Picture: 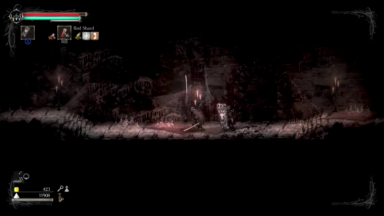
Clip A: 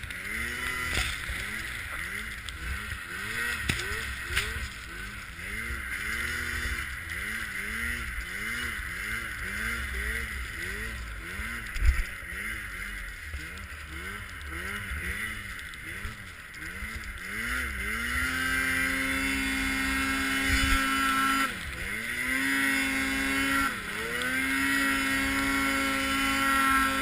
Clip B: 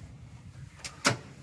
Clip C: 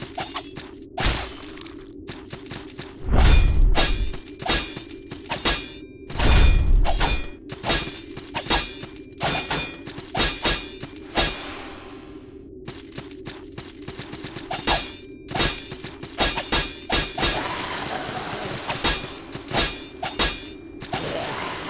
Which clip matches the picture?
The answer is C